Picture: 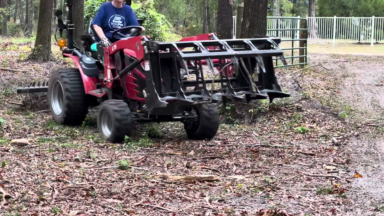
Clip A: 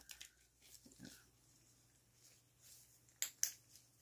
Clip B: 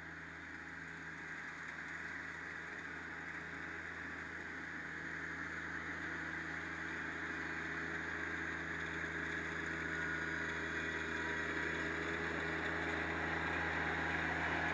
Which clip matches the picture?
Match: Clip B